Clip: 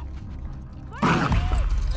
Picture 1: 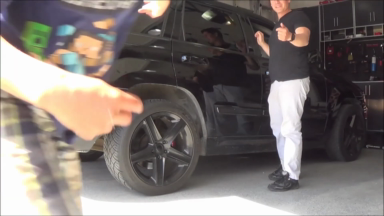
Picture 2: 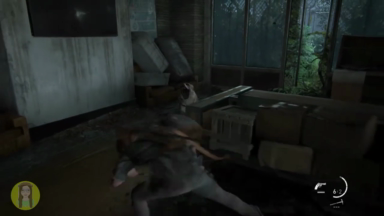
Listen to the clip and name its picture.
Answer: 2